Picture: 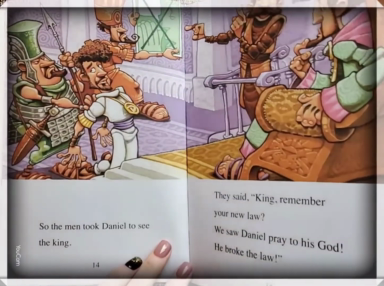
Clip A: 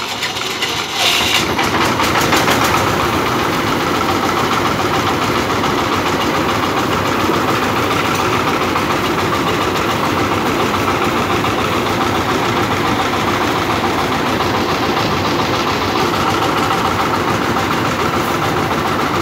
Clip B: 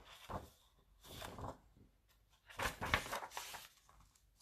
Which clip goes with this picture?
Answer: B